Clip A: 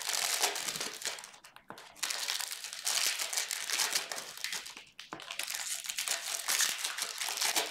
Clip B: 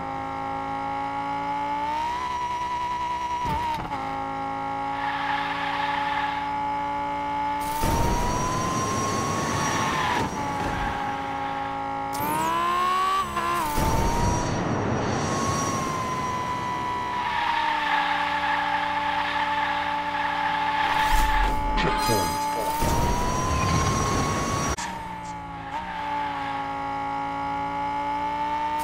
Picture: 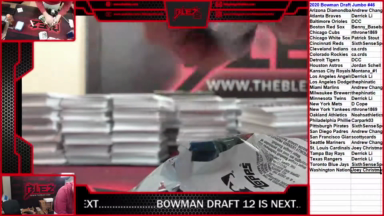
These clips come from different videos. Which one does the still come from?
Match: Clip A